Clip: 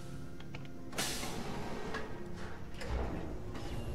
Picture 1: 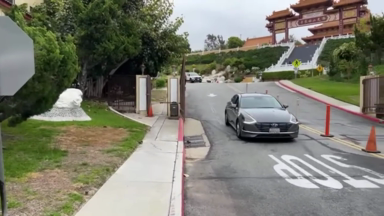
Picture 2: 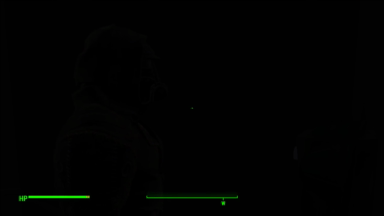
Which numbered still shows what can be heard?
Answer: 2